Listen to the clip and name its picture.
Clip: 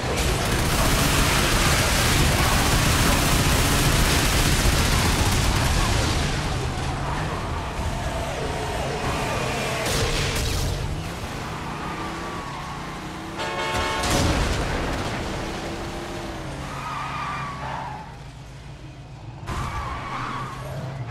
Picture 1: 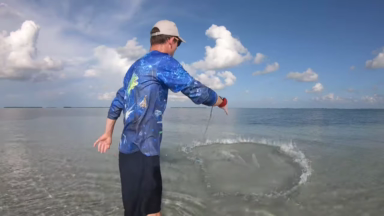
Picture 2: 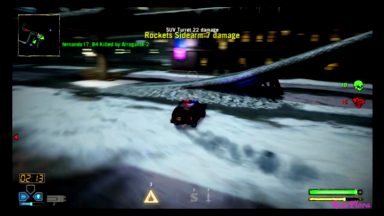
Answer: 2